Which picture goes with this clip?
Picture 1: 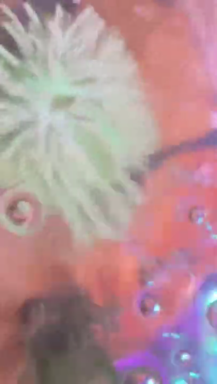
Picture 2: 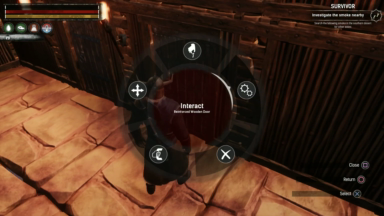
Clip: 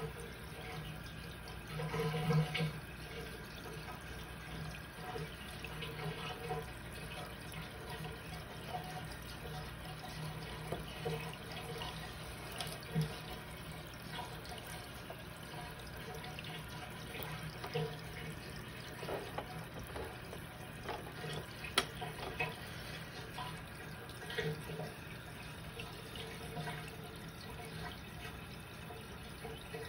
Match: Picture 1